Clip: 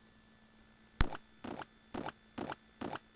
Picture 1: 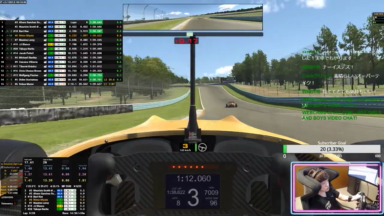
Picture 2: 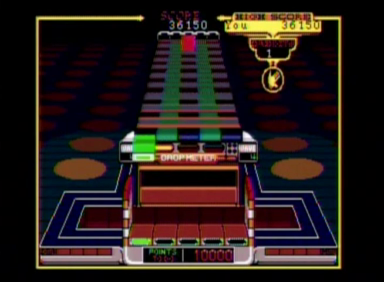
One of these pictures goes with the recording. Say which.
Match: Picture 2